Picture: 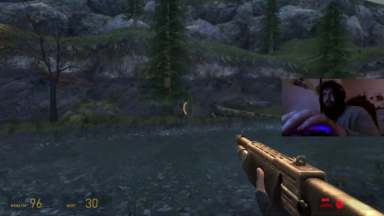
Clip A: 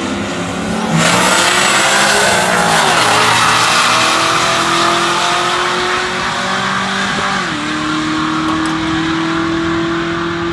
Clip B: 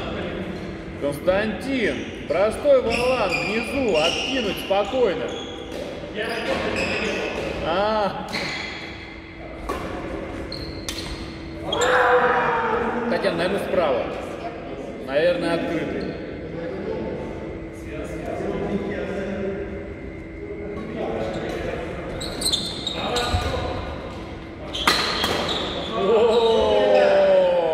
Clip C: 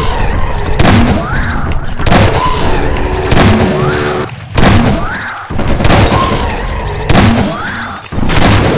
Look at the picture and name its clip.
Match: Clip C